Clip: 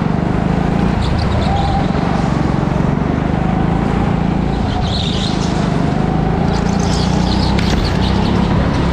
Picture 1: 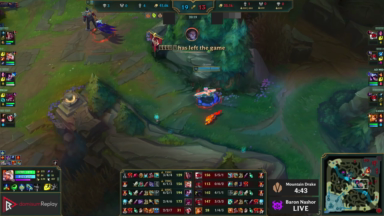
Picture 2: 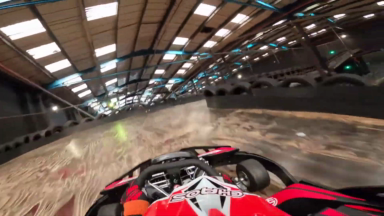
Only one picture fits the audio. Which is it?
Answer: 2